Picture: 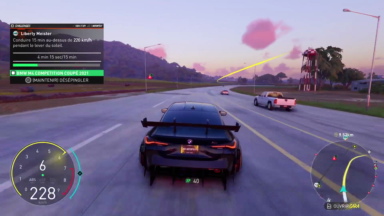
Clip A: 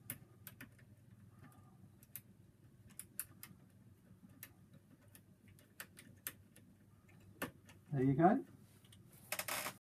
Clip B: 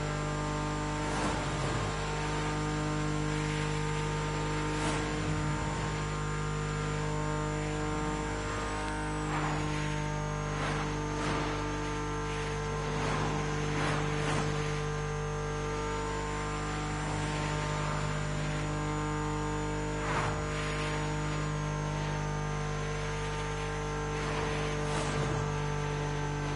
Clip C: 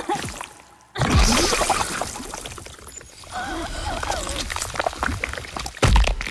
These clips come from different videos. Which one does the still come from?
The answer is B